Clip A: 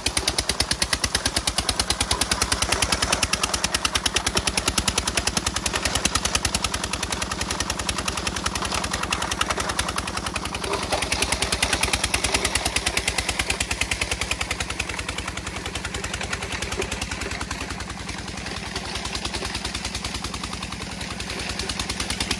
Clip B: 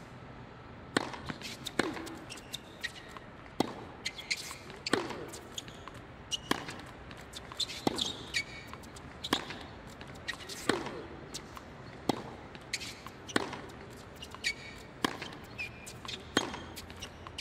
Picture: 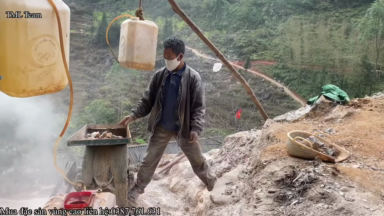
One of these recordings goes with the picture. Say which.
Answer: A